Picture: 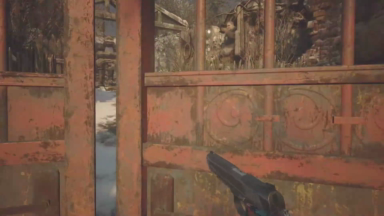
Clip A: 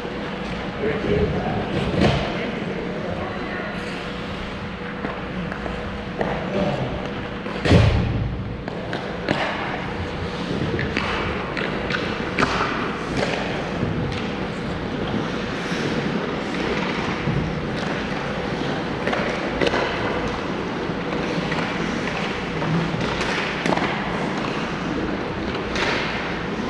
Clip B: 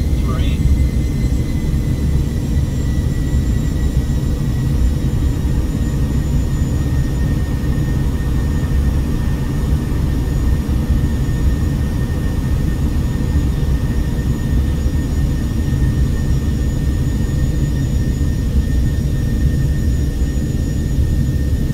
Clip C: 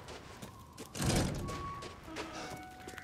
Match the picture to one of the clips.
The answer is C